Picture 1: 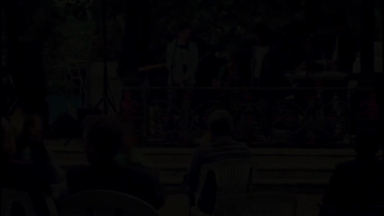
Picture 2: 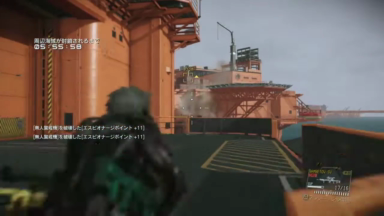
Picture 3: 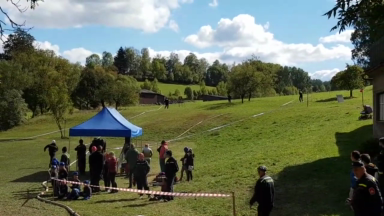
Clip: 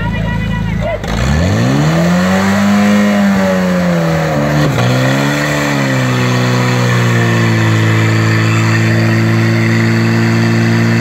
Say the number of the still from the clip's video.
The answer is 3